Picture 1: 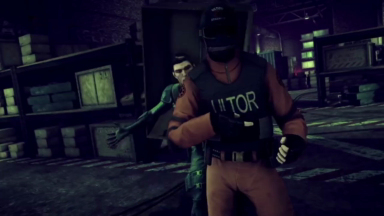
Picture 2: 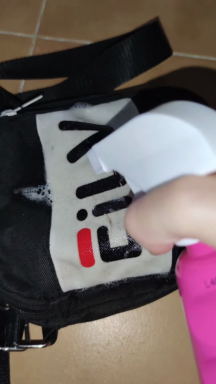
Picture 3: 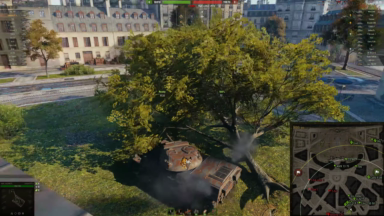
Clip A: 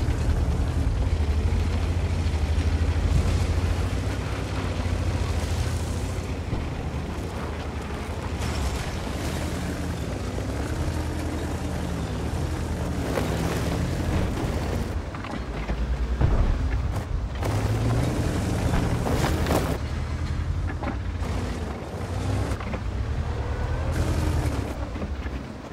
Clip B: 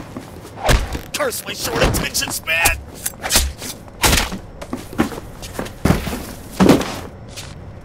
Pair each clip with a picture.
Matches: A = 3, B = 1